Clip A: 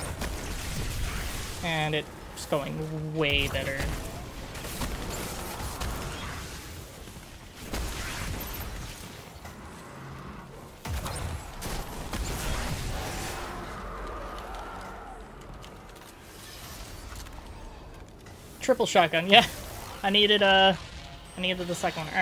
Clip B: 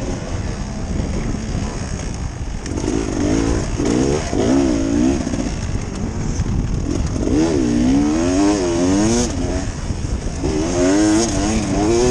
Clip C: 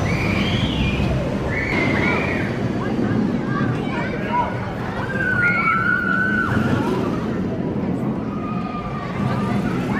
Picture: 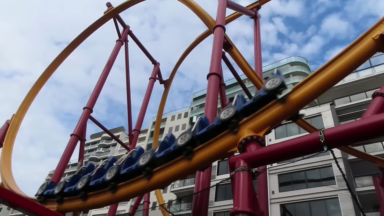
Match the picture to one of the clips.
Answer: C